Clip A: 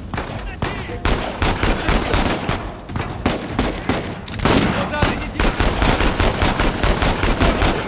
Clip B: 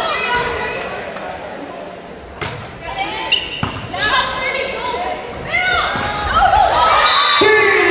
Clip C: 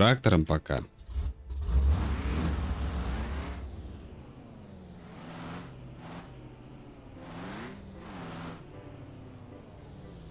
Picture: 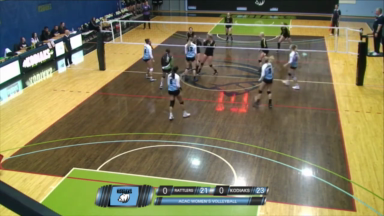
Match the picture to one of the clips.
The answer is B